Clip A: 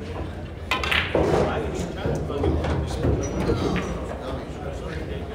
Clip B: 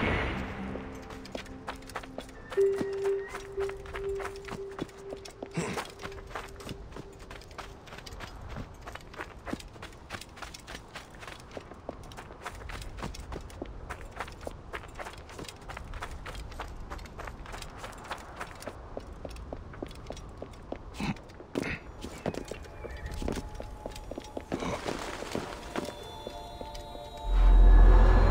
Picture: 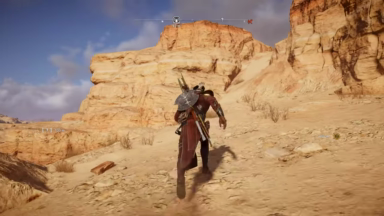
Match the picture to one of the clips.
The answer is B